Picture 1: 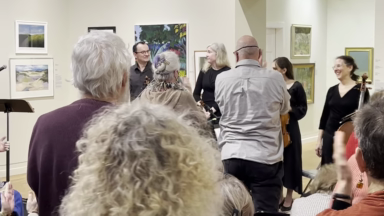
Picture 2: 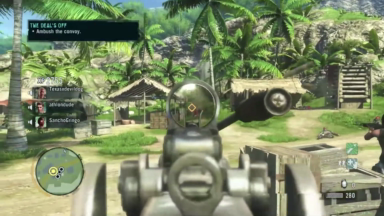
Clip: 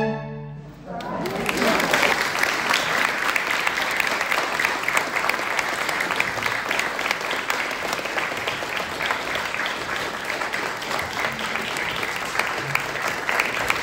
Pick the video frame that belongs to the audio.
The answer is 1